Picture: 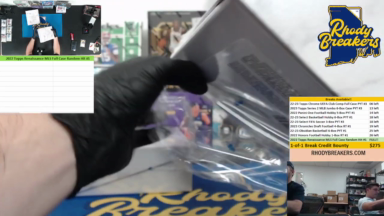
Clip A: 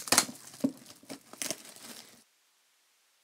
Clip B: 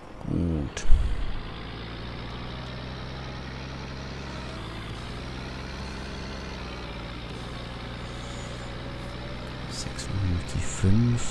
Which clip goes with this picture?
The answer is A